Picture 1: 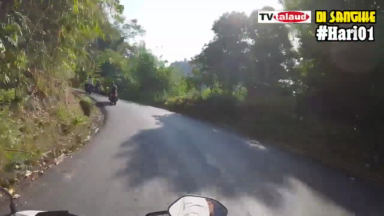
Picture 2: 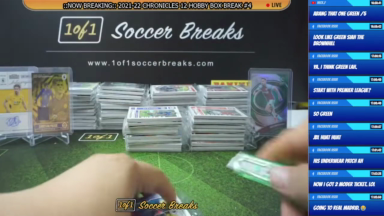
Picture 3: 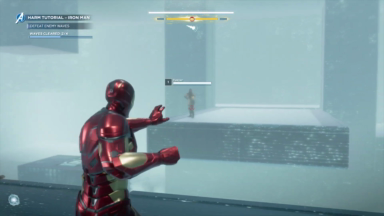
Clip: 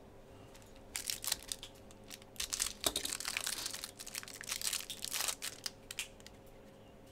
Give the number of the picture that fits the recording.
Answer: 2